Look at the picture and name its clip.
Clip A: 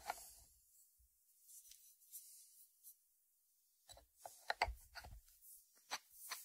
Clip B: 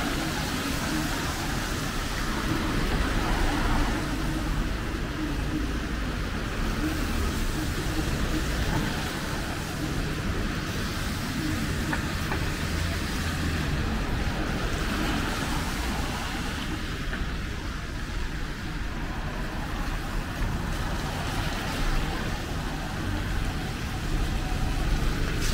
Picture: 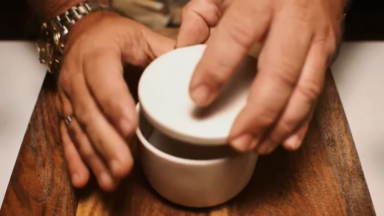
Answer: A